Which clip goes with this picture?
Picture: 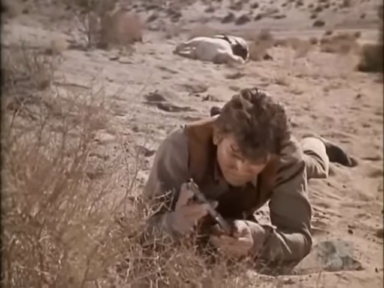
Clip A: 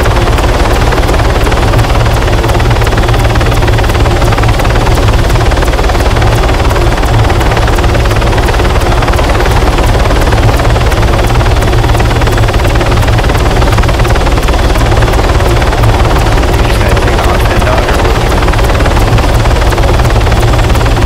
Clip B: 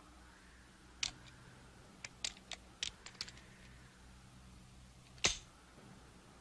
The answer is B